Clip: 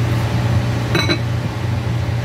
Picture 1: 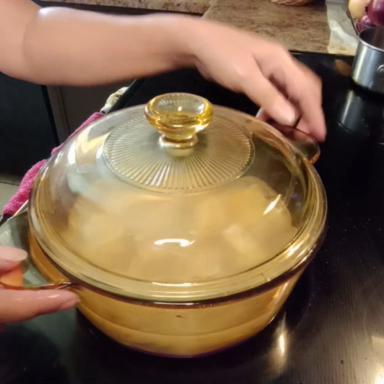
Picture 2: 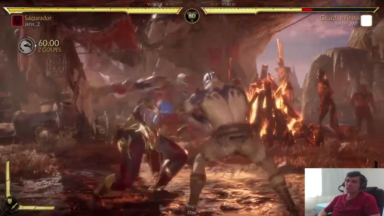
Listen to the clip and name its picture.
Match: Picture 1